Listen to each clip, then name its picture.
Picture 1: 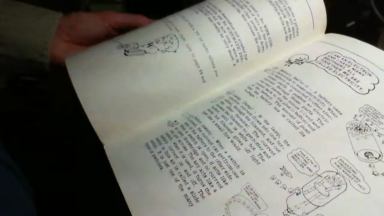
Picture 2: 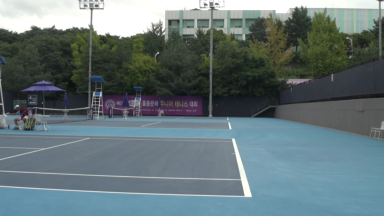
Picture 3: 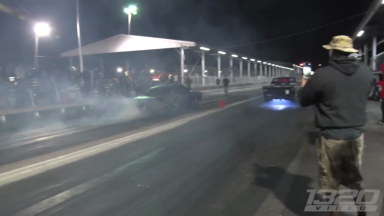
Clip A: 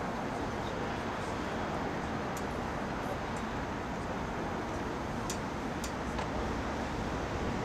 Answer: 2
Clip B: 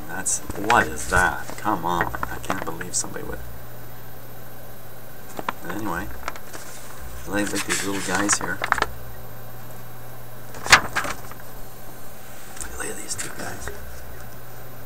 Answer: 1